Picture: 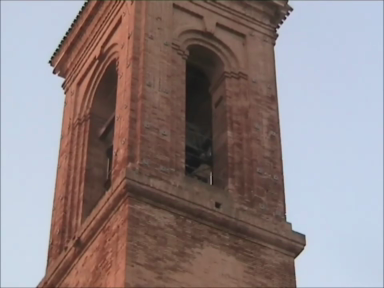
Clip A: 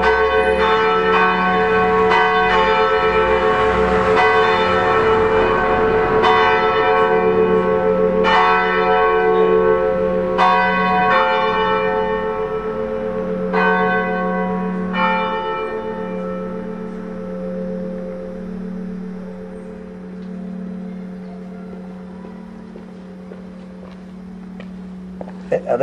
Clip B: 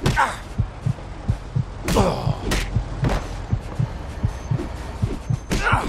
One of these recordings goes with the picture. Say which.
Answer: A